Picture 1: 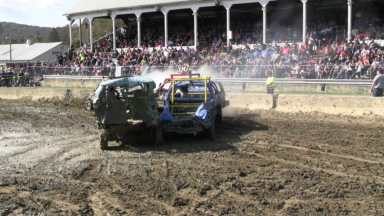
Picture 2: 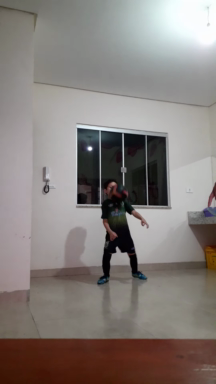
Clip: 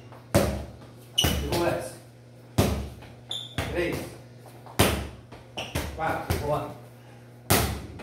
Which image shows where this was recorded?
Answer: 2